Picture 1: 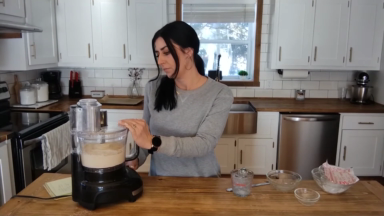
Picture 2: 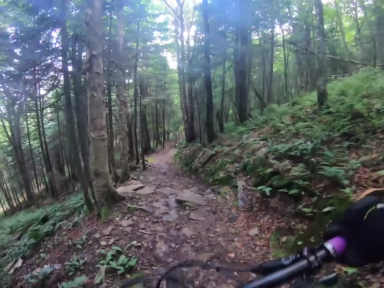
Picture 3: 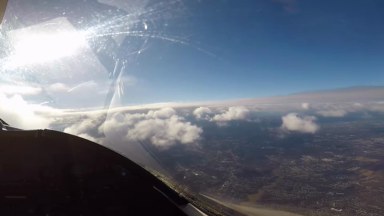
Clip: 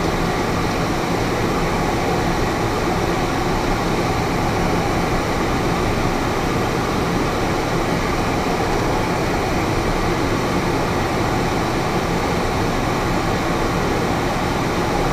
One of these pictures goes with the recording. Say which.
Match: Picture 3